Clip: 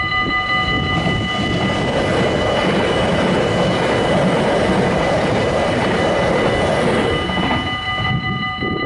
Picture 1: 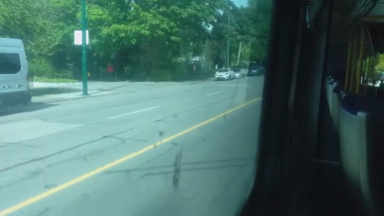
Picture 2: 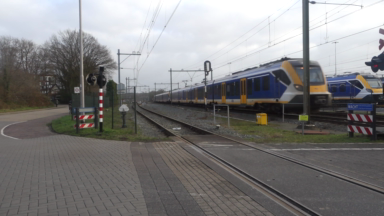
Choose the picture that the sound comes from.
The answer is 2